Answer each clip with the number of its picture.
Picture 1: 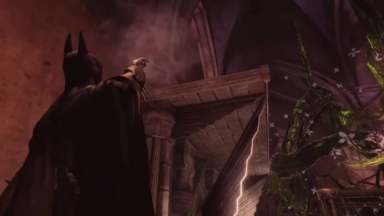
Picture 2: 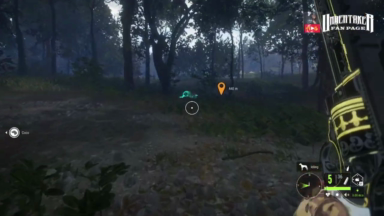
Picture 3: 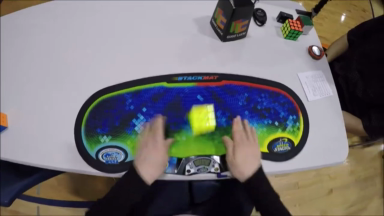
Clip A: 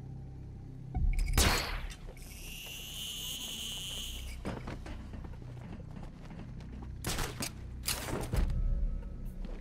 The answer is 1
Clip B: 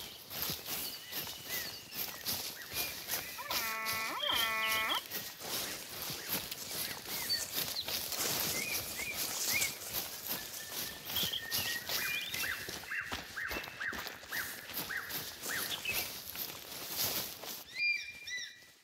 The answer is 2